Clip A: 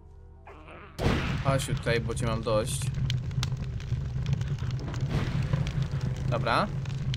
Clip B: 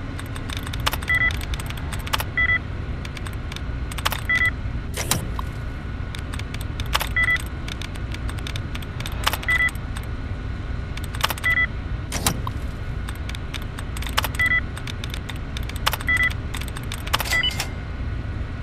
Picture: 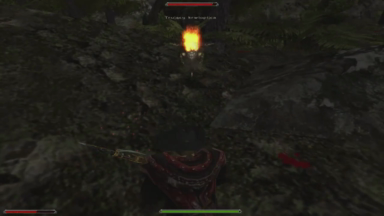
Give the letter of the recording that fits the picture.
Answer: A